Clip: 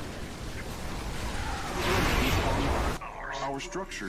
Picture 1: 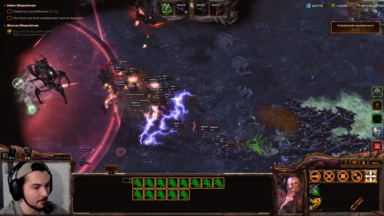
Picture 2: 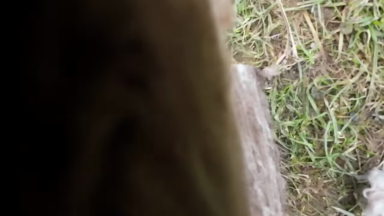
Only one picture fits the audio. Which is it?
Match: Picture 1